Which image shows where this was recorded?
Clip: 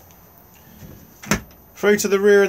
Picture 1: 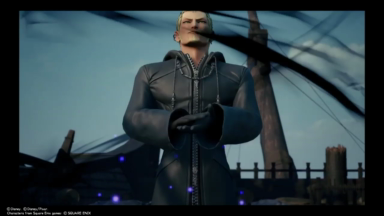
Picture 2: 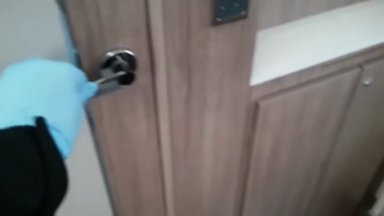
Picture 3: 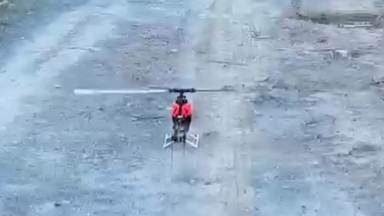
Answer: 2